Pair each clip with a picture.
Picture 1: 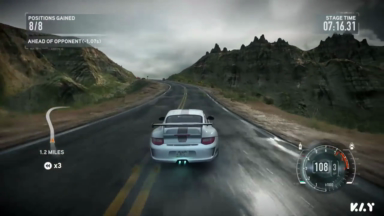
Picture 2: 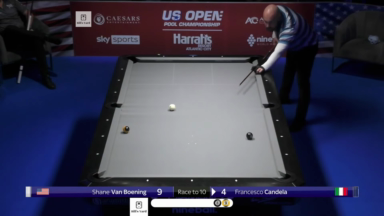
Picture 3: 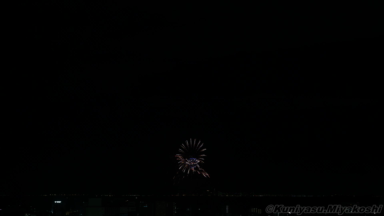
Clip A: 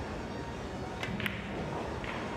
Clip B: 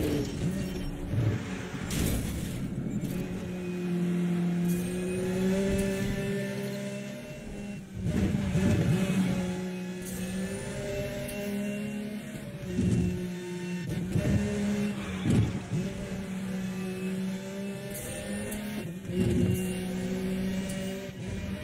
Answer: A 2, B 1